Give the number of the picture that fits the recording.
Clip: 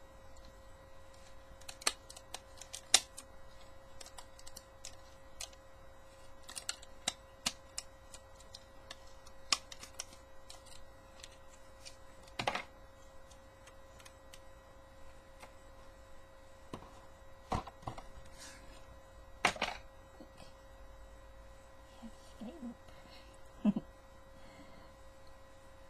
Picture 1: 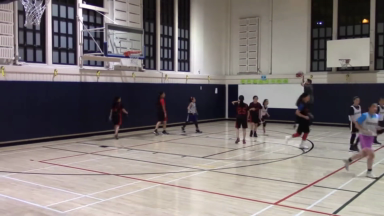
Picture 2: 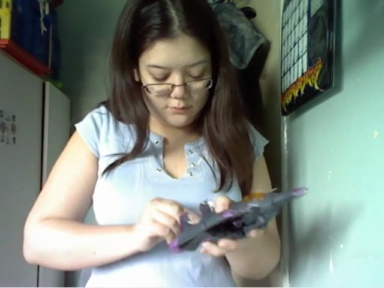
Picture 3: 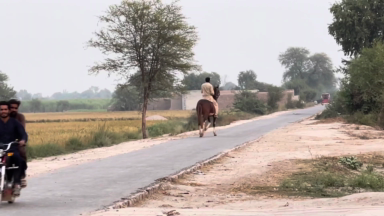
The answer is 2